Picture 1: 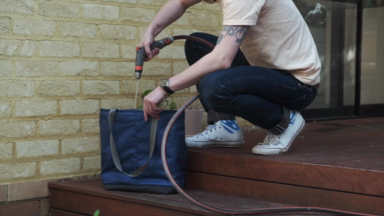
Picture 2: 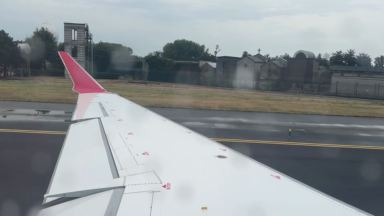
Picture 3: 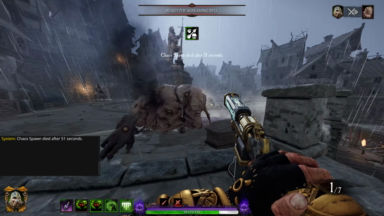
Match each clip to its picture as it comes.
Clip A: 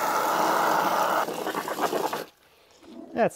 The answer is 1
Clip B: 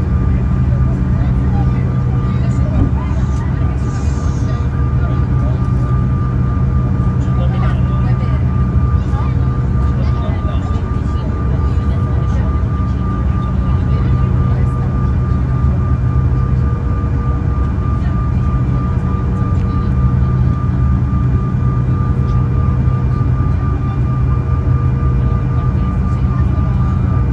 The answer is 2